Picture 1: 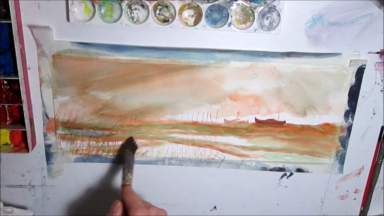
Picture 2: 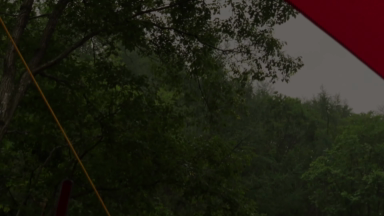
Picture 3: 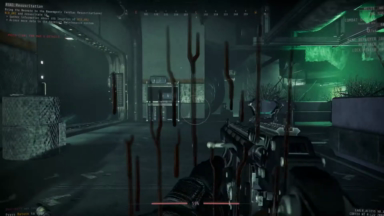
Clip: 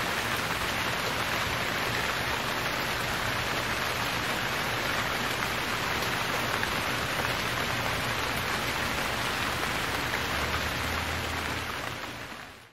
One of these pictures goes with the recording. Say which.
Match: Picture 2